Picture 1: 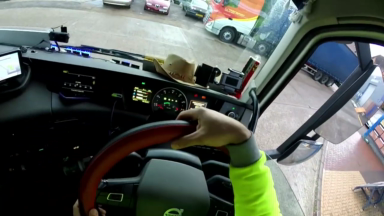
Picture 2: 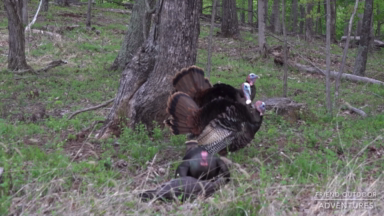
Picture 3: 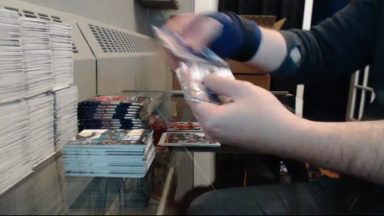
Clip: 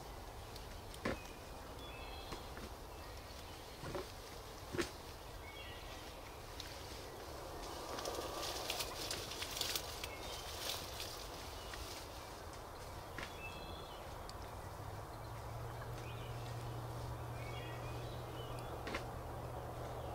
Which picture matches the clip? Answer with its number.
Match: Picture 2